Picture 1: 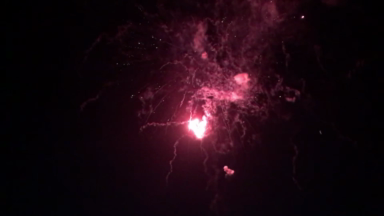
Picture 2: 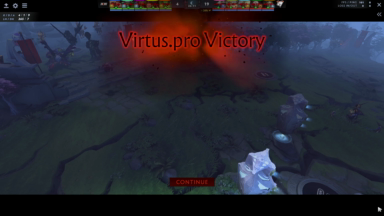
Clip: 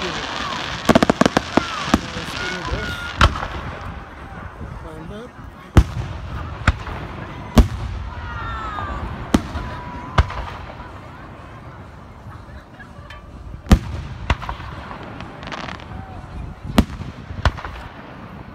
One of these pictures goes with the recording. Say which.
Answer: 1